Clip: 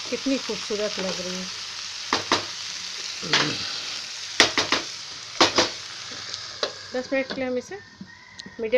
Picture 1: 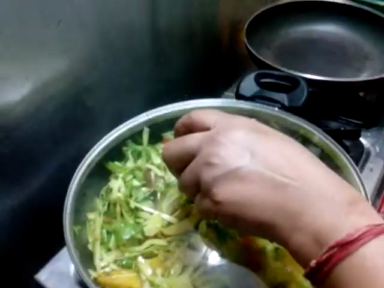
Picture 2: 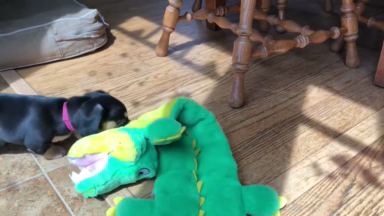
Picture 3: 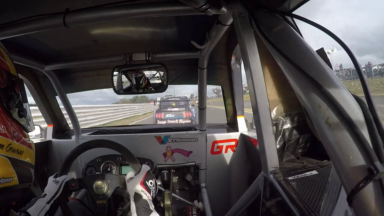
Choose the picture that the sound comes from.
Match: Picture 1